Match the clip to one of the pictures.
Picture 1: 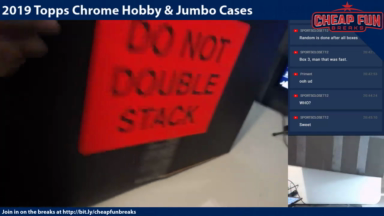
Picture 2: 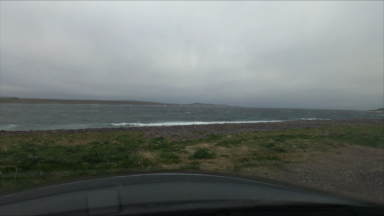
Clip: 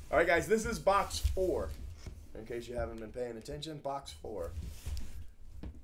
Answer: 1